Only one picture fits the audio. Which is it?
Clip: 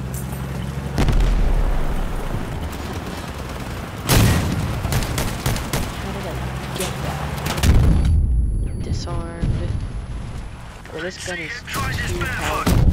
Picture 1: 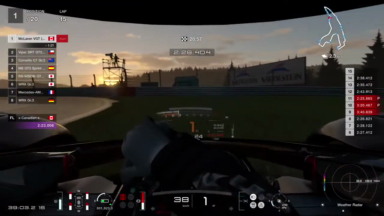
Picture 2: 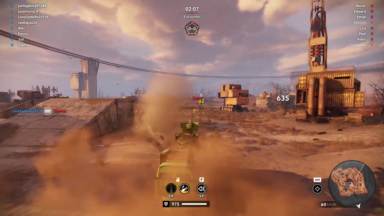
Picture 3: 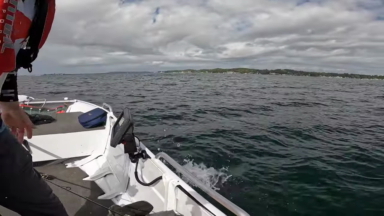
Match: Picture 2